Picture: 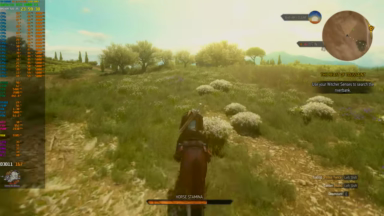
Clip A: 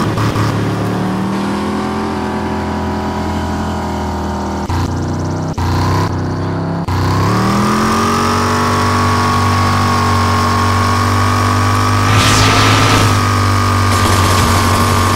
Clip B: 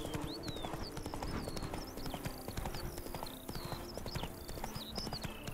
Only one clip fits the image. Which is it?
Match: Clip B